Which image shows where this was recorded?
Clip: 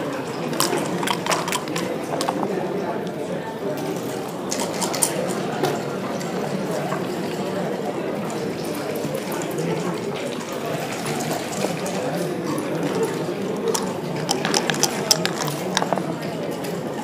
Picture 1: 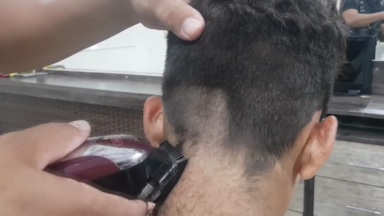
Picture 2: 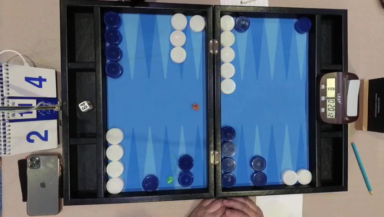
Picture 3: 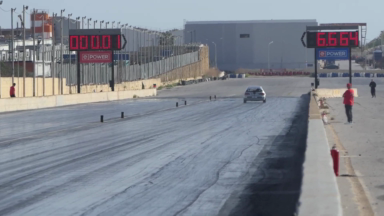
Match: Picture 2